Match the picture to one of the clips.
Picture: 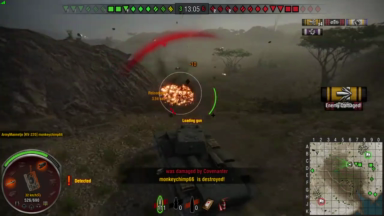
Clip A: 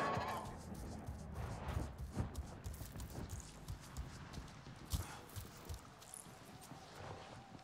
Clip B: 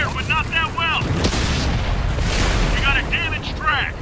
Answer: B